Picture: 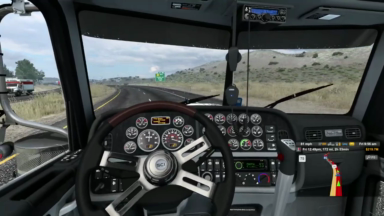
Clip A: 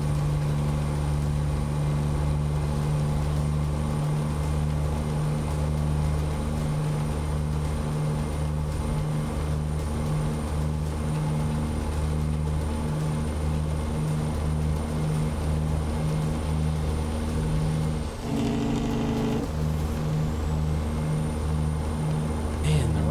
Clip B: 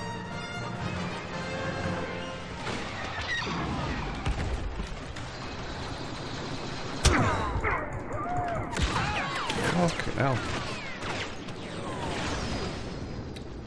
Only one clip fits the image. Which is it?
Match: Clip A